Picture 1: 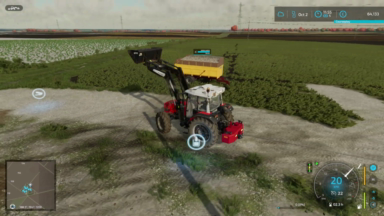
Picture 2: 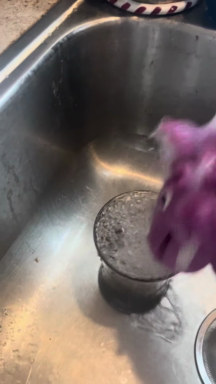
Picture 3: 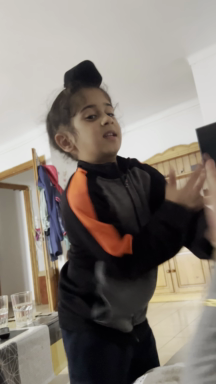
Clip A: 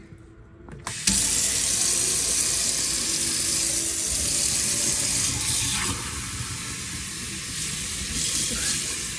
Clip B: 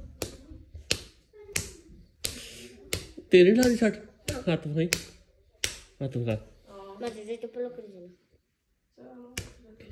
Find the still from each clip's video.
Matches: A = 2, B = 3